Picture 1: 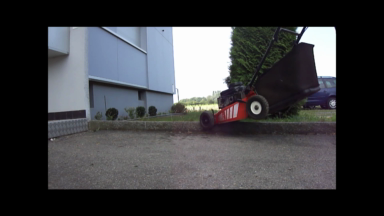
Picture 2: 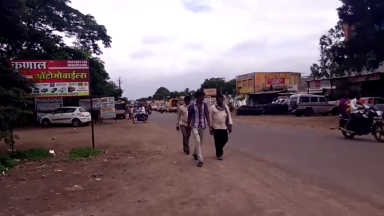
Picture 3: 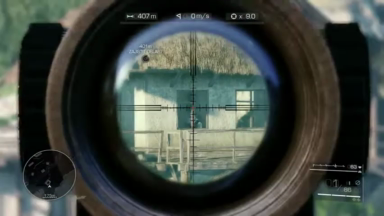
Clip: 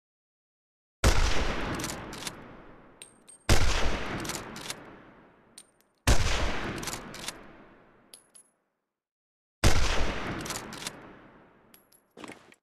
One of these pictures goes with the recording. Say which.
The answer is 3